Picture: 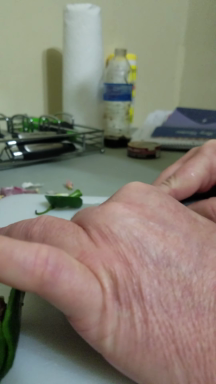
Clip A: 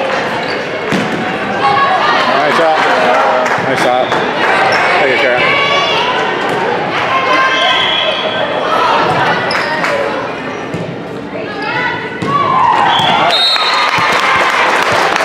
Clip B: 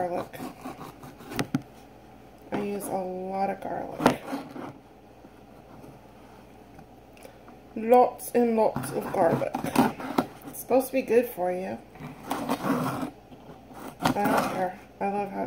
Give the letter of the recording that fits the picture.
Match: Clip B